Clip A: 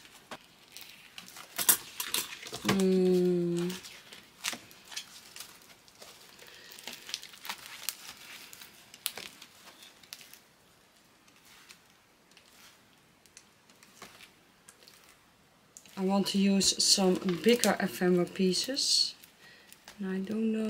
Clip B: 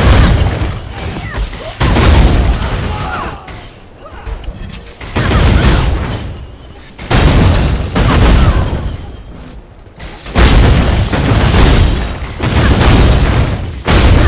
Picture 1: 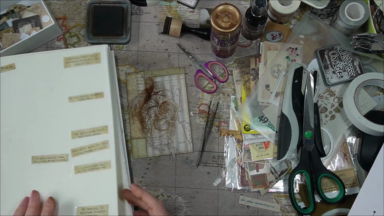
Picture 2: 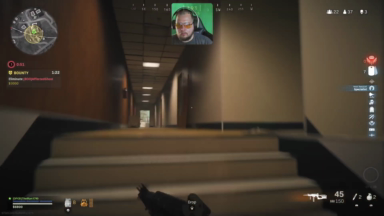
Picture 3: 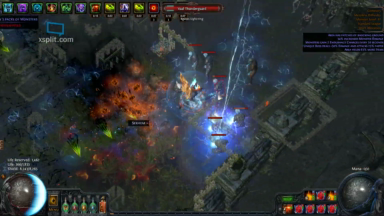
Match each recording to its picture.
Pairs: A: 1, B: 3